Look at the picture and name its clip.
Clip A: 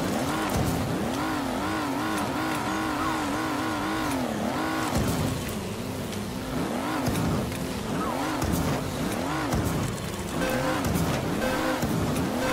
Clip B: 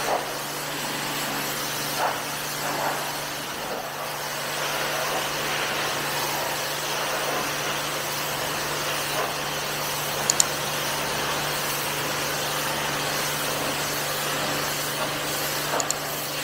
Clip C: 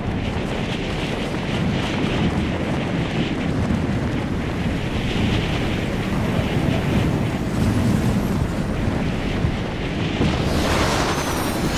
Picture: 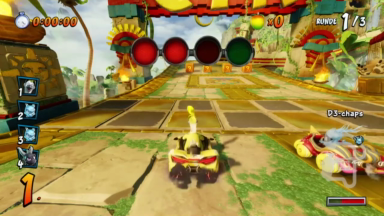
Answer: A